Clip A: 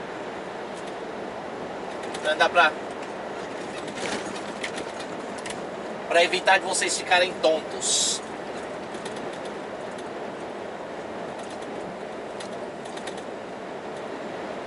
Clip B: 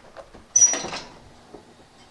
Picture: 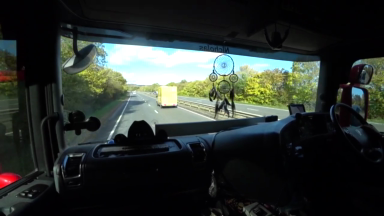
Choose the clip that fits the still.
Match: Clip A